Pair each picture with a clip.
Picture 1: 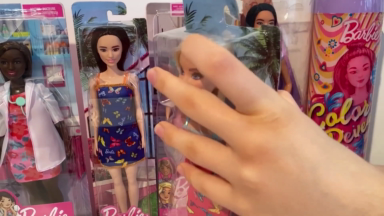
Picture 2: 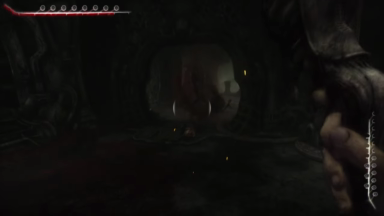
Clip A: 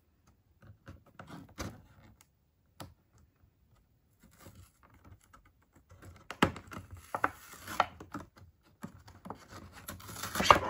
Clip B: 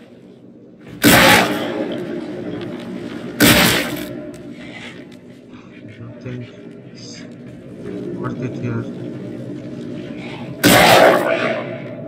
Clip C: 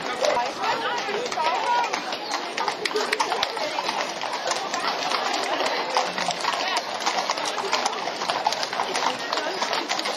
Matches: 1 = A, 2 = B